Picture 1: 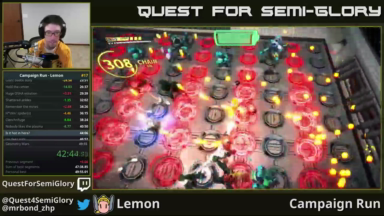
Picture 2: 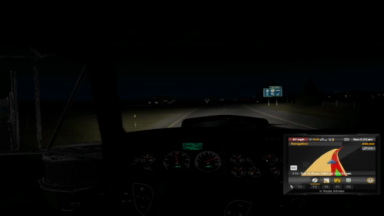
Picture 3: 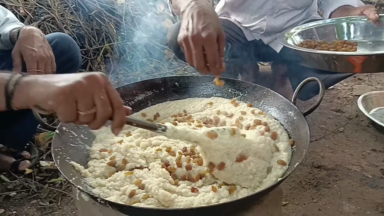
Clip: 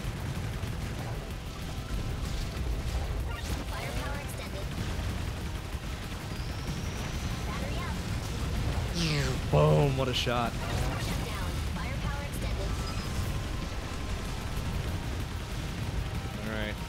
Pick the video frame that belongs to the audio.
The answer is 1